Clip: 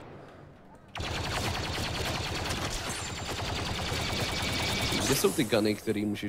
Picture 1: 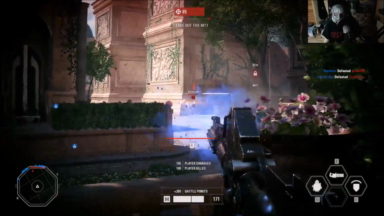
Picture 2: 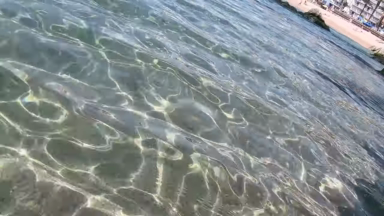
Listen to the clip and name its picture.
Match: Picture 1